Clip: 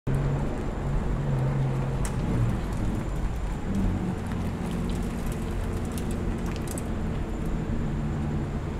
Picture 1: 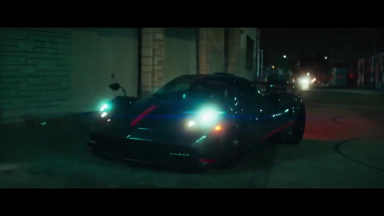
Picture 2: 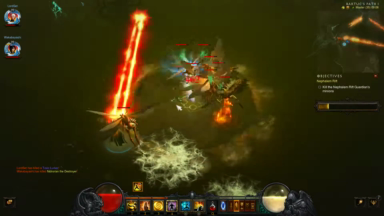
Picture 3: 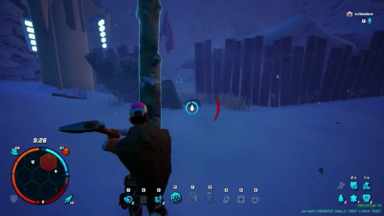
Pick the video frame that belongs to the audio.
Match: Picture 1